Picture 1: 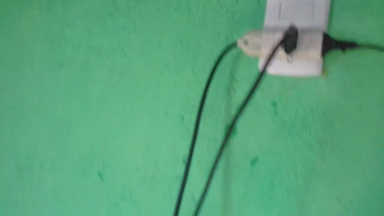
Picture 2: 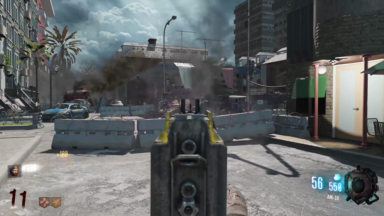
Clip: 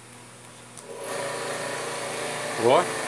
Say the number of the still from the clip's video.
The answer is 1